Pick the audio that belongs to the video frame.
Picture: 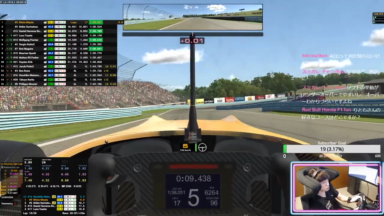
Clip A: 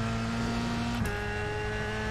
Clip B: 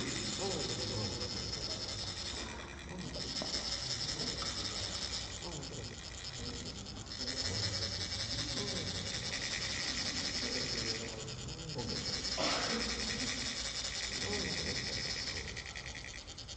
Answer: A